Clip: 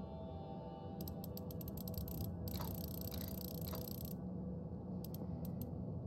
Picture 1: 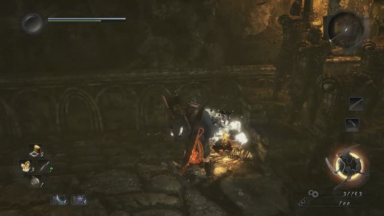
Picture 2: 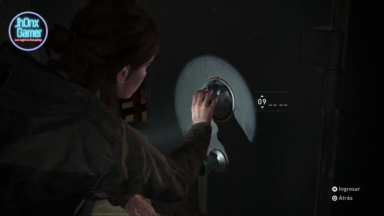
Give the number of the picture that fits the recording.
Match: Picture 2